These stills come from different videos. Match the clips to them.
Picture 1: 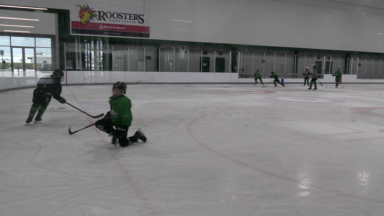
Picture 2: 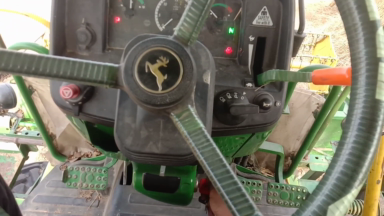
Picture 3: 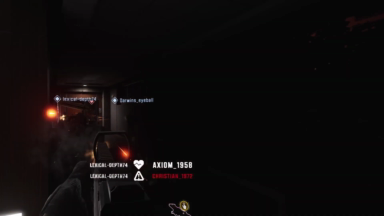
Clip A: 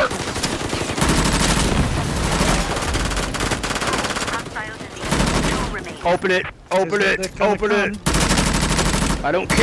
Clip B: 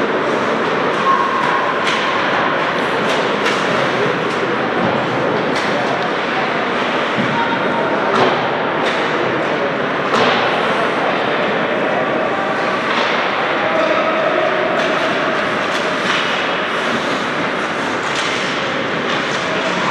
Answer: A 3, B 1